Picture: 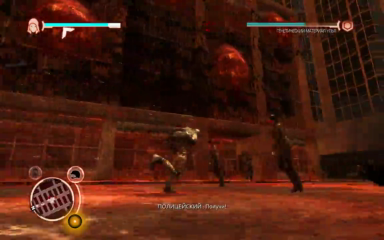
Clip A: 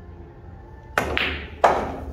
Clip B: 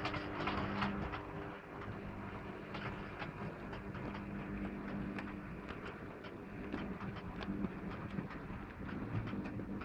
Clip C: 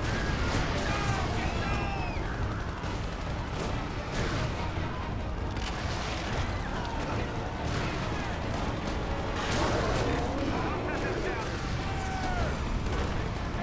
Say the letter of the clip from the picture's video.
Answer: C